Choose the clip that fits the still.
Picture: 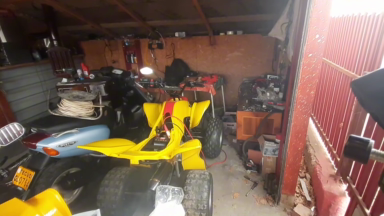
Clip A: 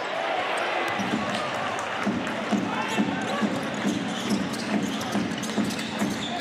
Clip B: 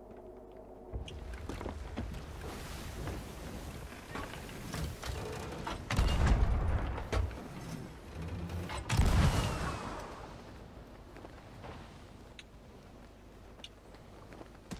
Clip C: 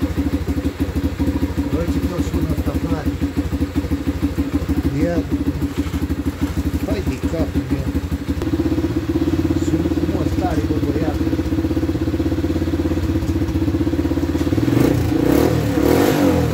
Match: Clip C